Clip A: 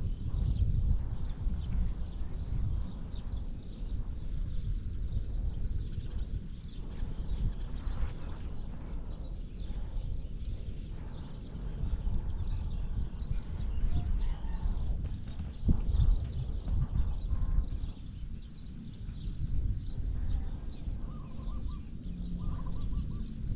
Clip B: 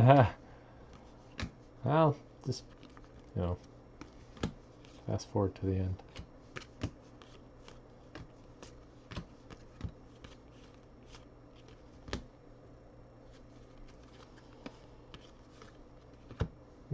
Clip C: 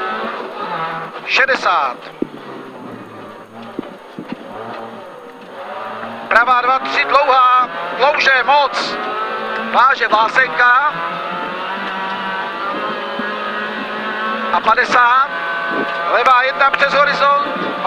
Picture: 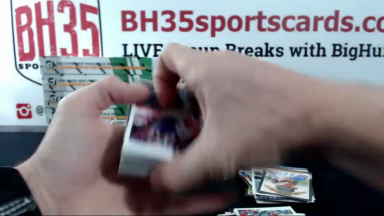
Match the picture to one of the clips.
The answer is B